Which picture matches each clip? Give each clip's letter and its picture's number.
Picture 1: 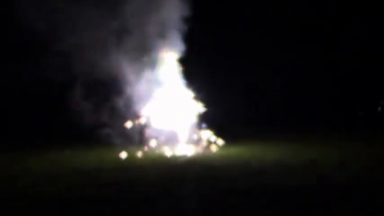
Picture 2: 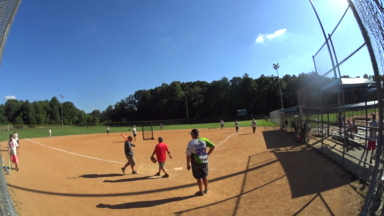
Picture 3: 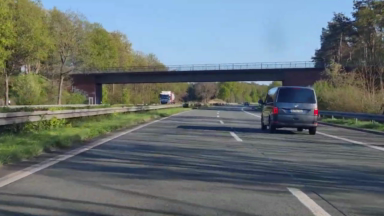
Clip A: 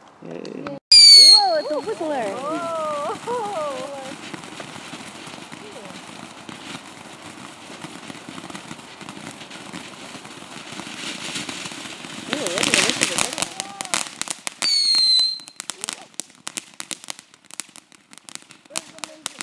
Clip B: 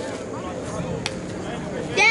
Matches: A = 1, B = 2